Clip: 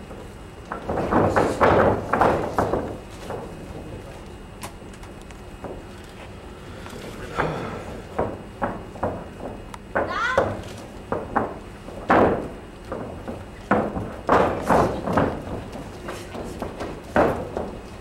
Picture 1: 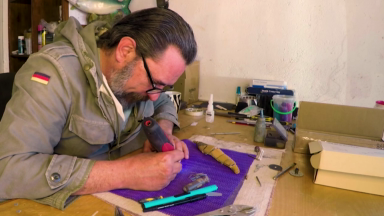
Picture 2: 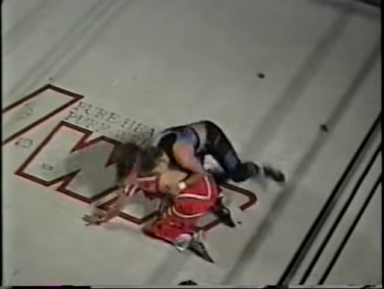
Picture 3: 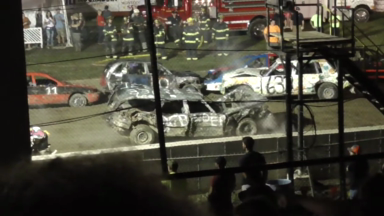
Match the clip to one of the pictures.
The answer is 2